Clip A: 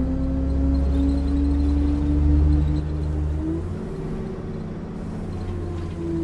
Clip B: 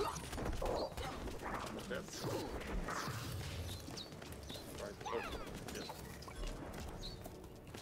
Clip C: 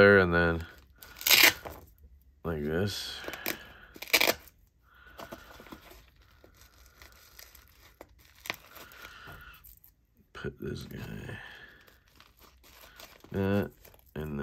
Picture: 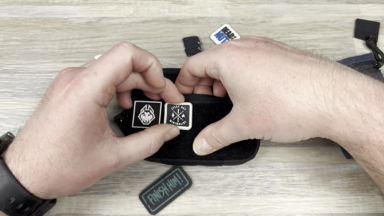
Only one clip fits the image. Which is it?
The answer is C